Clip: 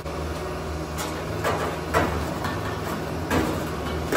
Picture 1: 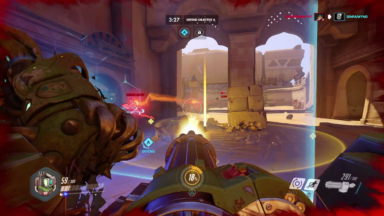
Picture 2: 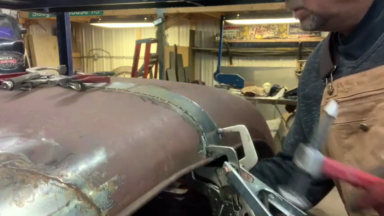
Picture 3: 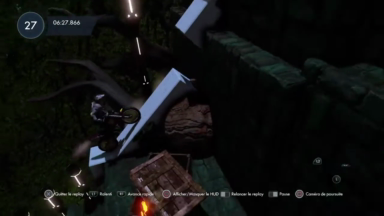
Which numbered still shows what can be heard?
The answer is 2